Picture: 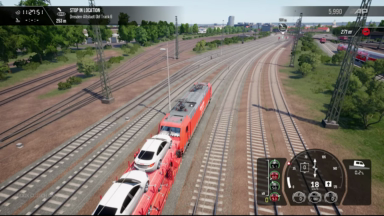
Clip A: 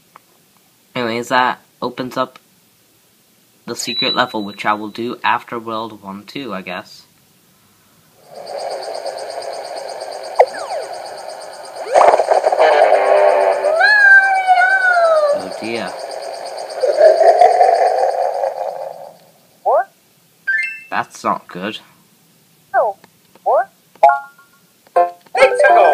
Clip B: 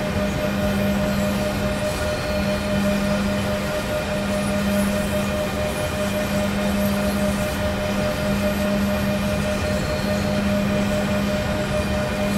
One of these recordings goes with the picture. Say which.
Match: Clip B